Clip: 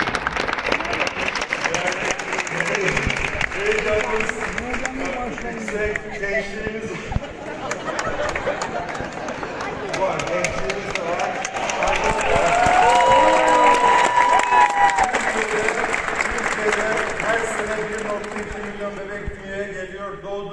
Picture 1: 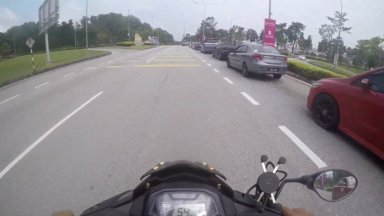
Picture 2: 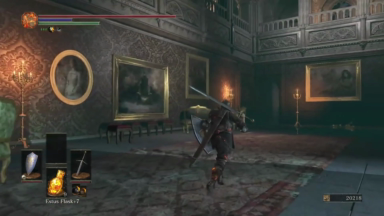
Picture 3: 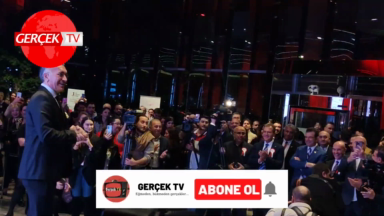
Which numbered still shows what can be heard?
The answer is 3